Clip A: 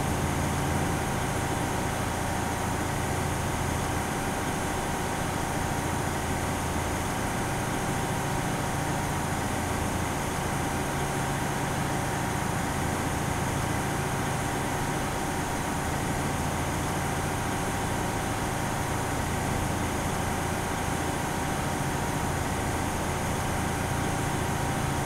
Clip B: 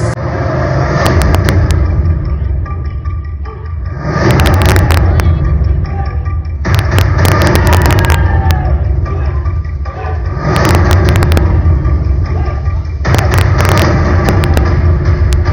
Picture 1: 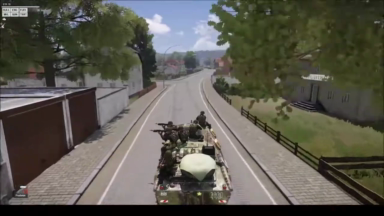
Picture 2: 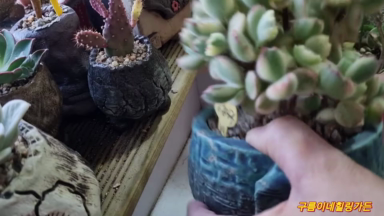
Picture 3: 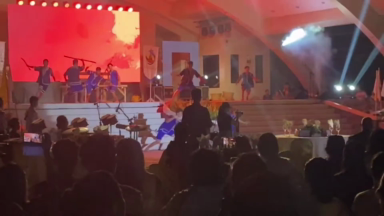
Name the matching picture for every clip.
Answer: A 1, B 3